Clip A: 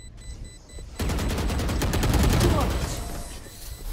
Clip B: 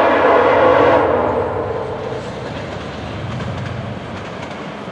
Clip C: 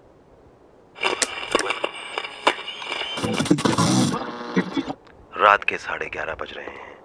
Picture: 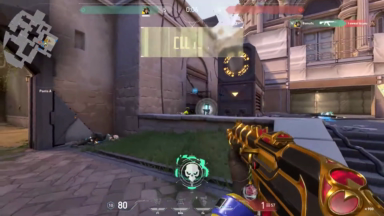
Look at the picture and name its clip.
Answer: A